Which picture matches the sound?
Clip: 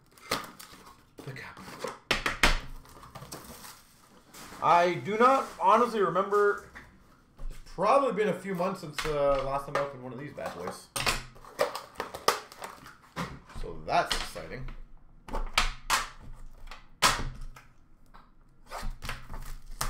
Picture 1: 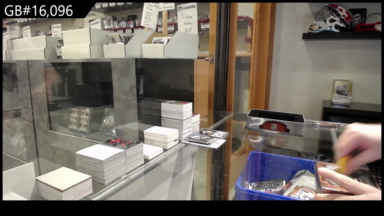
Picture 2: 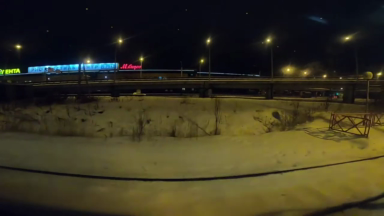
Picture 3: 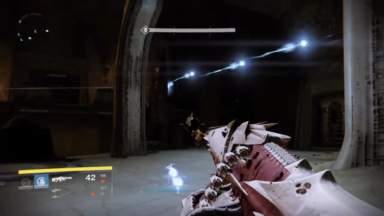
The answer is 1